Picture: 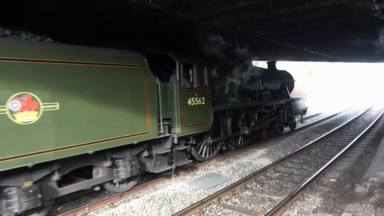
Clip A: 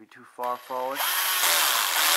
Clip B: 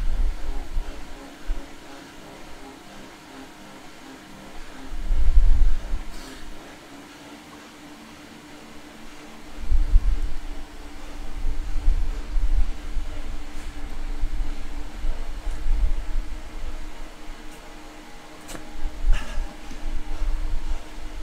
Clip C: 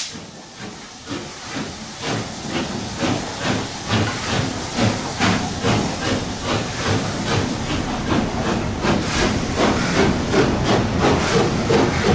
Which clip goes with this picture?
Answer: C